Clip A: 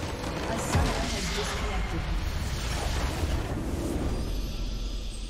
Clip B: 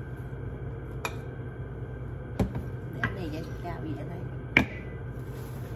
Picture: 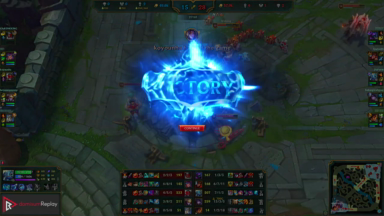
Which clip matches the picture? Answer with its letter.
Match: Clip A